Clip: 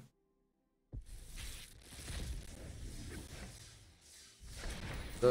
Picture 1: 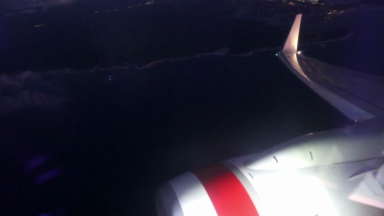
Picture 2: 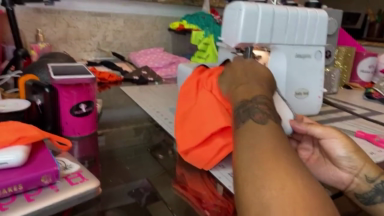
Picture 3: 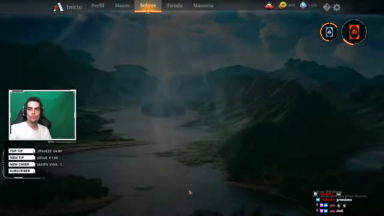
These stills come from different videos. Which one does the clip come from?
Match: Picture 3